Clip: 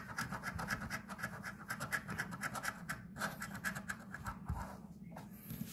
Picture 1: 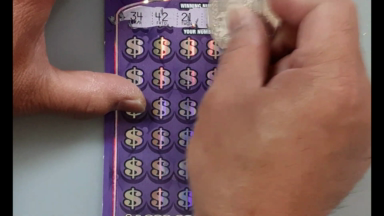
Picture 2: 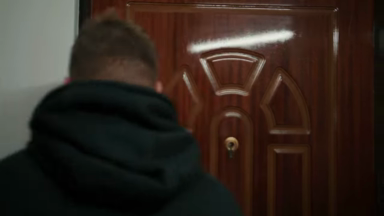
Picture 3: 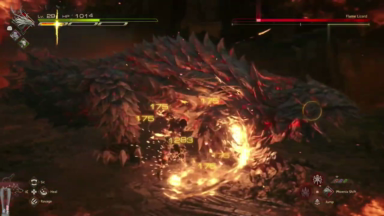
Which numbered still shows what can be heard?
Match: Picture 1